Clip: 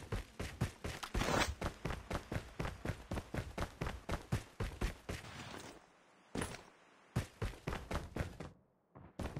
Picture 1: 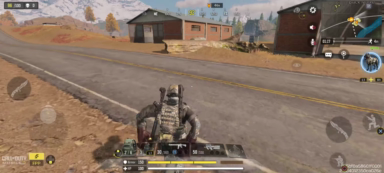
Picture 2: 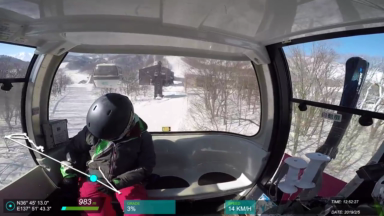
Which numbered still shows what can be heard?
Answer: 1